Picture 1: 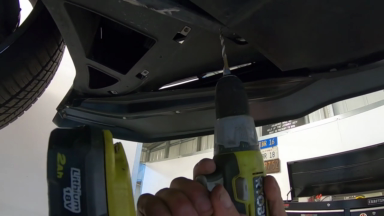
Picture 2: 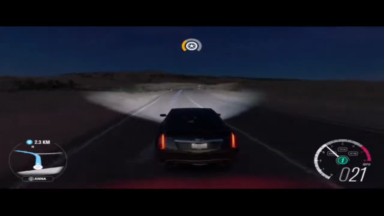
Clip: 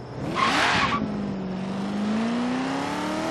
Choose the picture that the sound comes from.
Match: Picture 2